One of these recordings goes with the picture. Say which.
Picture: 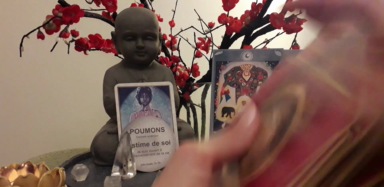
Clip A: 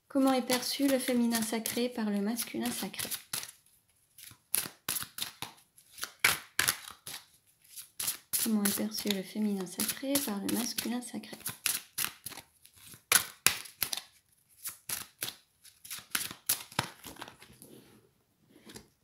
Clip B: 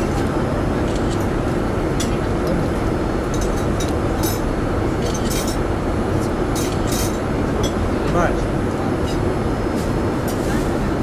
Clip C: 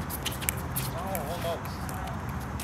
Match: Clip A